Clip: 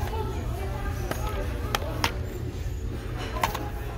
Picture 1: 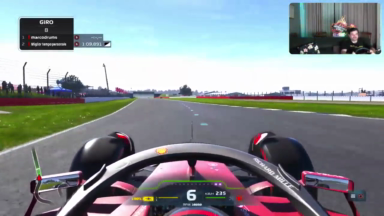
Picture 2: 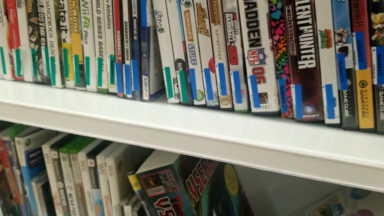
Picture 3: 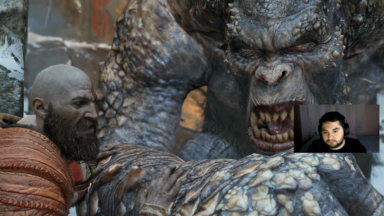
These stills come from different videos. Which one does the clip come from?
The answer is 2